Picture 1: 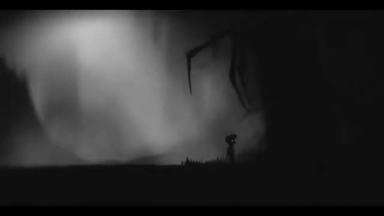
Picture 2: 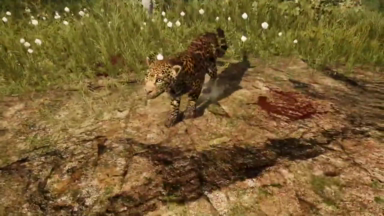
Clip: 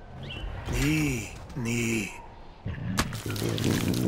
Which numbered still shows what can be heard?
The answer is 2